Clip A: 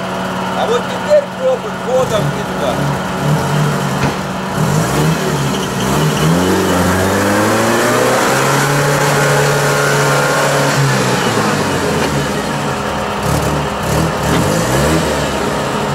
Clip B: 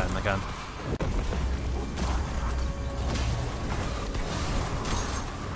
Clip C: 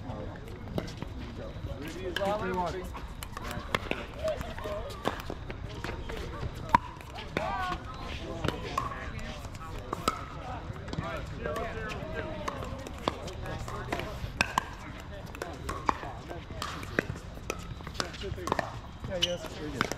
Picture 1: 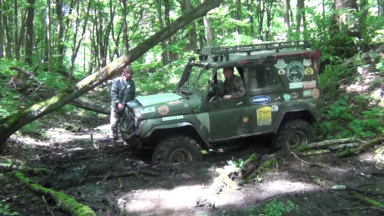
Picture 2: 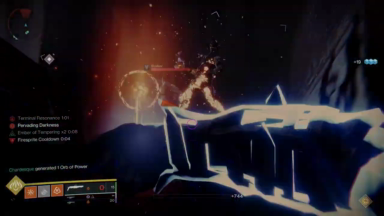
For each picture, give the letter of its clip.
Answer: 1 A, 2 B